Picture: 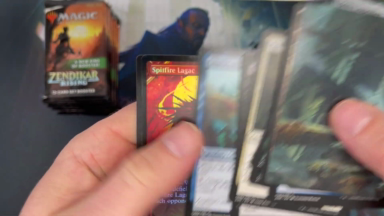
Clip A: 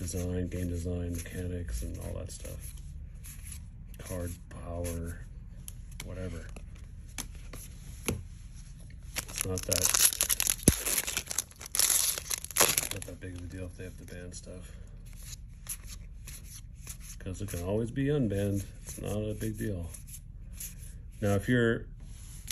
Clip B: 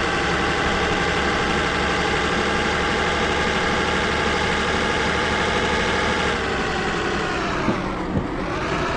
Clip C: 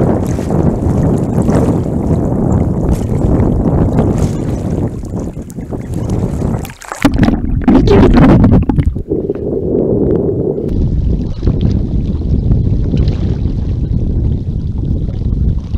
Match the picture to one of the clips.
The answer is A